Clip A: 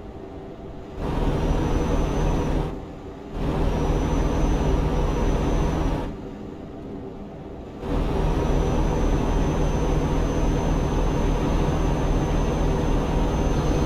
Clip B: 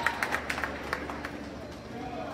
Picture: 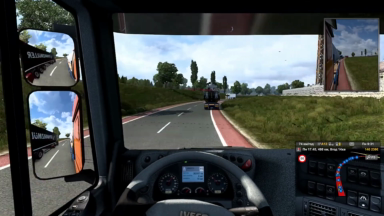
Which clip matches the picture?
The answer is A